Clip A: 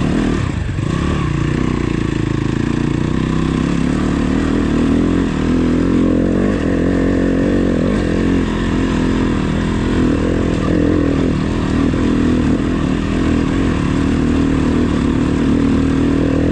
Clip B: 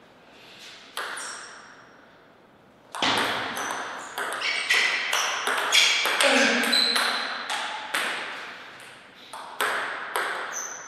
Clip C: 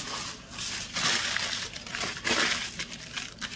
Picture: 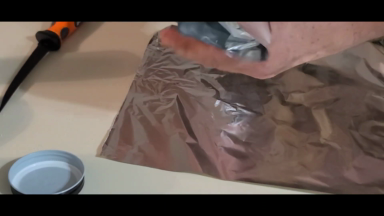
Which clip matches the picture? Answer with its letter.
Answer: C